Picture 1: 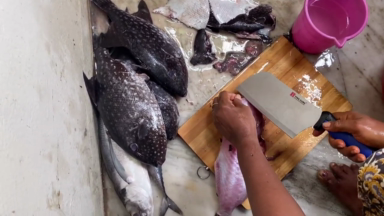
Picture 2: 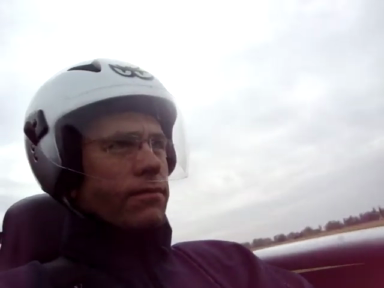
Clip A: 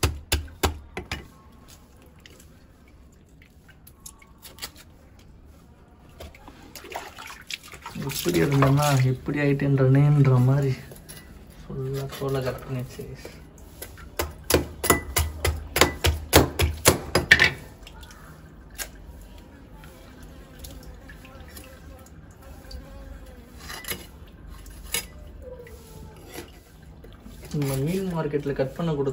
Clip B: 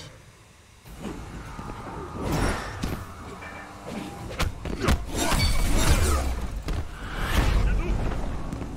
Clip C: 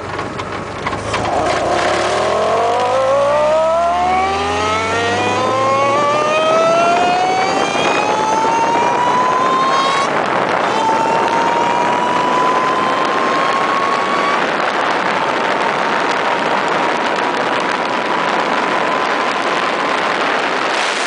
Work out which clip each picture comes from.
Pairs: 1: A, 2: C